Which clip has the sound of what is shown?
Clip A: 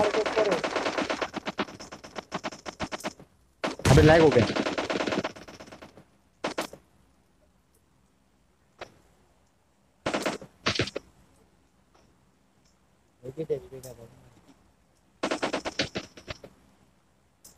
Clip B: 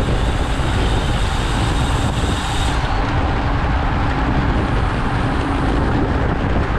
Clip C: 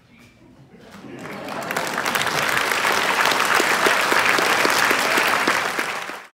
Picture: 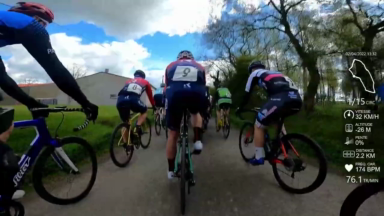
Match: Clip B